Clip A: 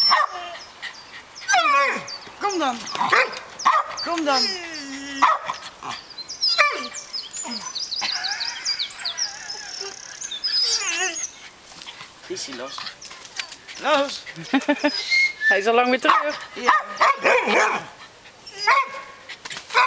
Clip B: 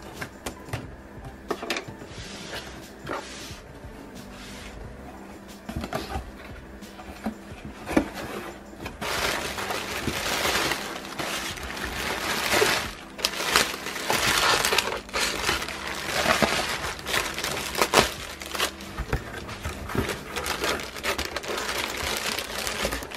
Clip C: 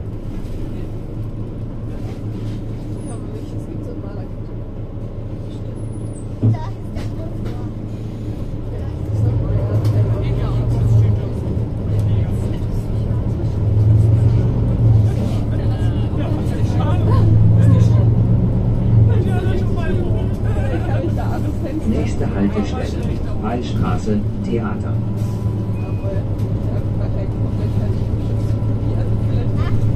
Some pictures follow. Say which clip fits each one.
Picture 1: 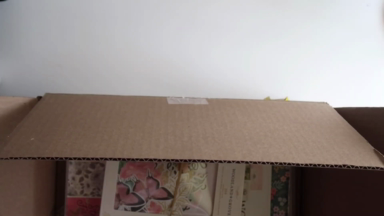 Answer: B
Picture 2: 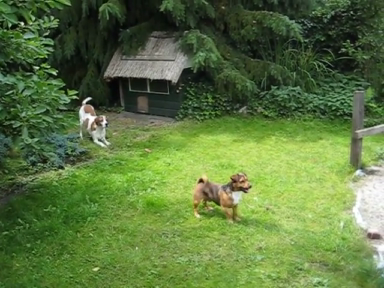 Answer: A